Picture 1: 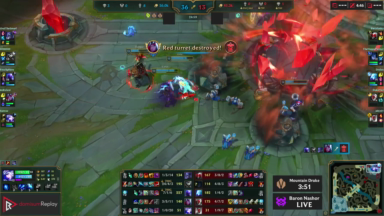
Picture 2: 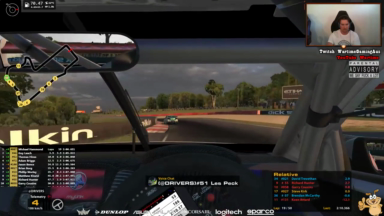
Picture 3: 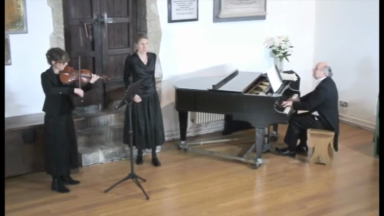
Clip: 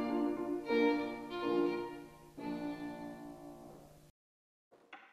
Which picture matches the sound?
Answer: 3